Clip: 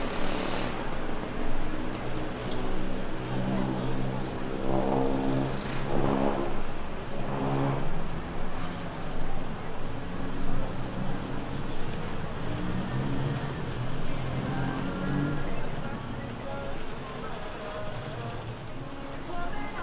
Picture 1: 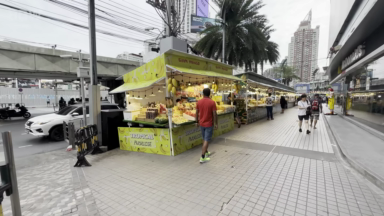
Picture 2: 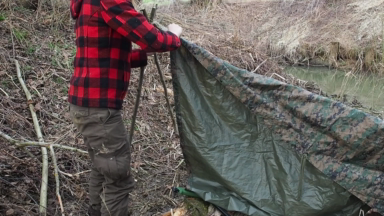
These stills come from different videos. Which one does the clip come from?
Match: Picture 1